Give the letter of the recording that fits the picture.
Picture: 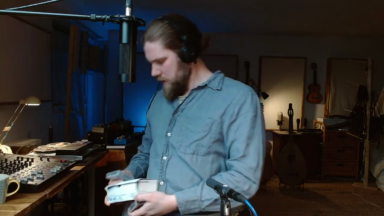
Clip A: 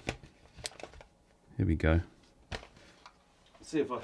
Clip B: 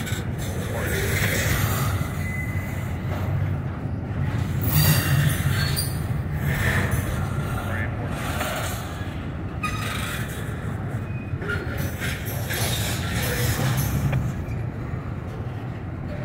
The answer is A